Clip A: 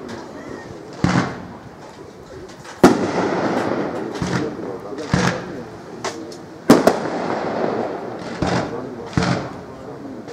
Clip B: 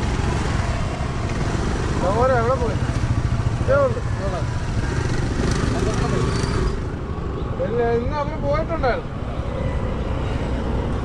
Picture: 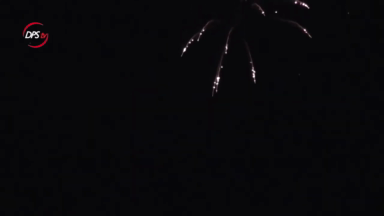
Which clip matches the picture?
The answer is A